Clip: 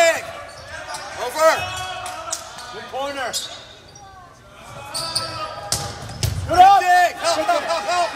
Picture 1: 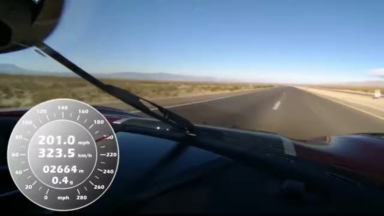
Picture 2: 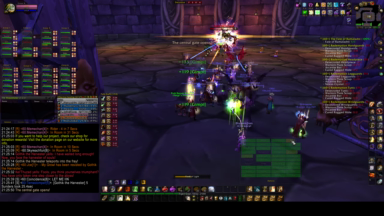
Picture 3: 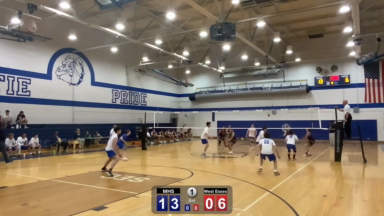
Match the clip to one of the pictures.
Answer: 3